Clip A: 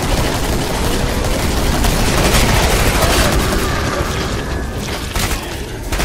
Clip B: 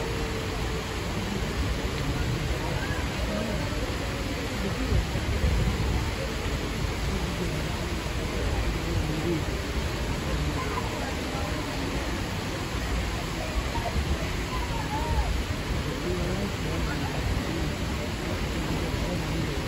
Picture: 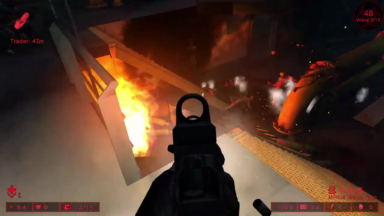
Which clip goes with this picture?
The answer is A